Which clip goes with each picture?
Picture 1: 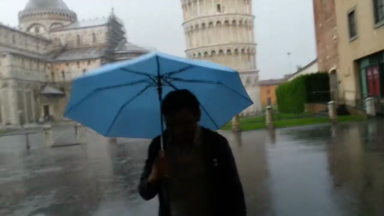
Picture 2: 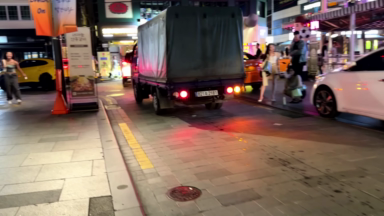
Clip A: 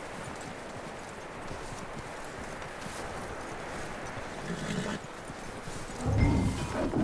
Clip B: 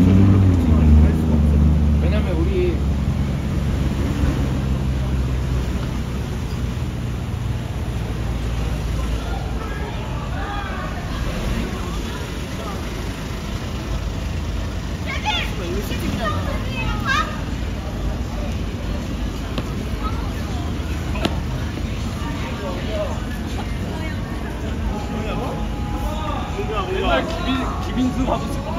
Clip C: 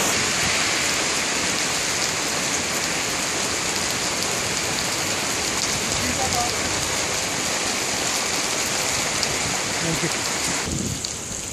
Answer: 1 C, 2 B